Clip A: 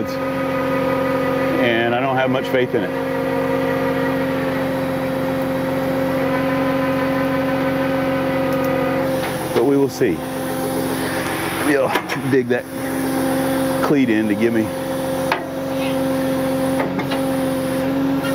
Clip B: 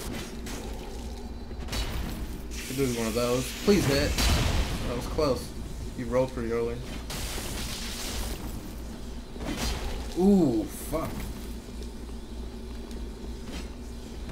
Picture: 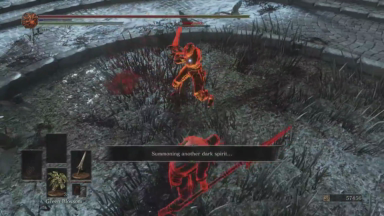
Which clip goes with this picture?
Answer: B